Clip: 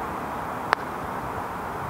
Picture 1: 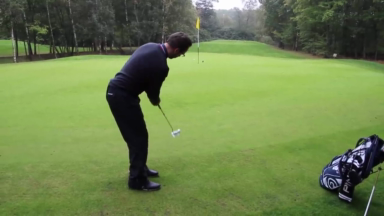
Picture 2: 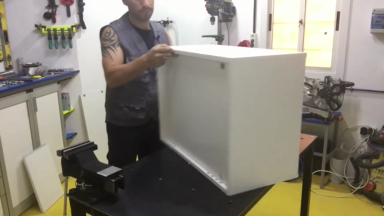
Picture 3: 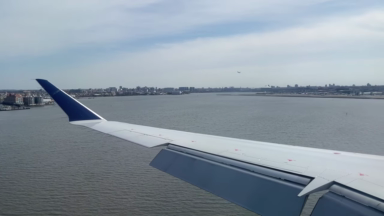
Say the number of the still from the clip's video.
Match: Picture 1